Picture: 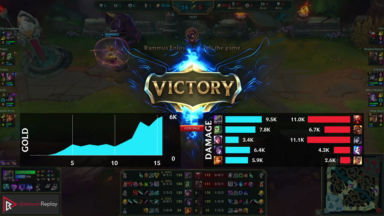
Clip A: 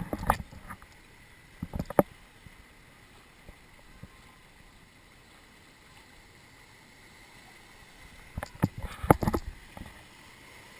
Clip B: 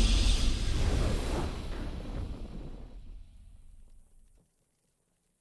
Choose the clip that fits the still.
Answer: B